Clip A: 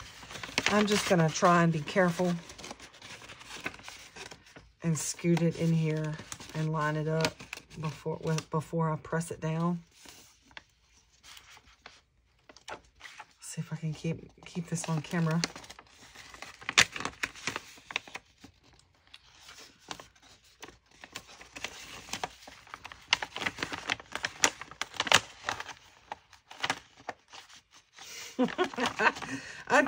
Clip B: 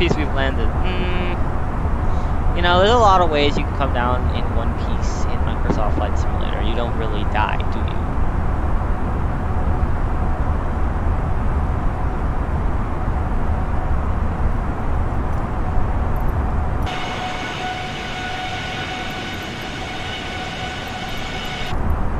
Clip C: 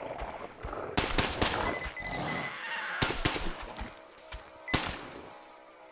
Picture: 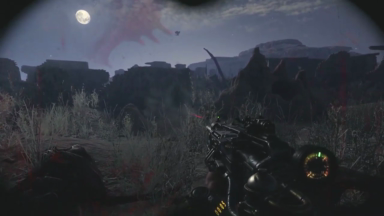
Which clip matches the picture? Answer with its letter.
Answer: C